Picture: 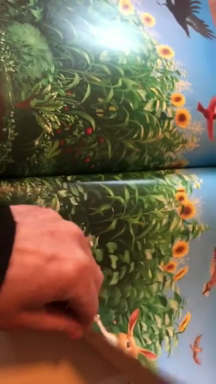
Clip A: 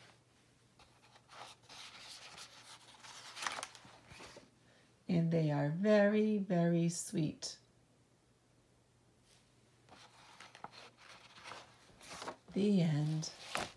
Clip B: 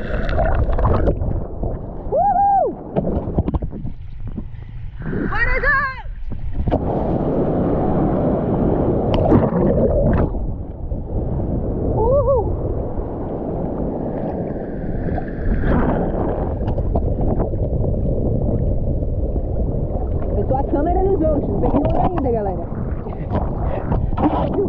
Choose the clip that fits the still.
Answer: A